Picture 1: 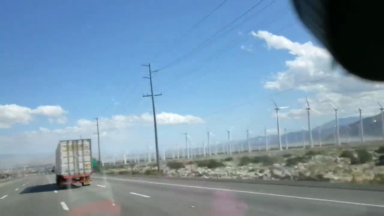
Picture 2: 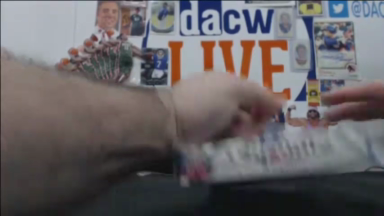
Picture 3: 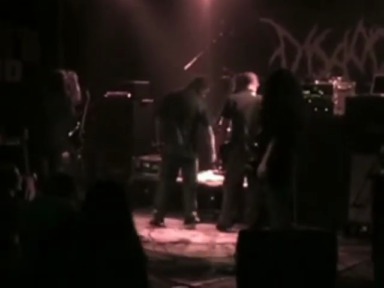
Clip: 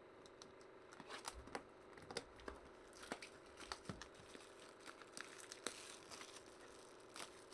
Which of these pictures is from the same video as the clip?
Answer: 2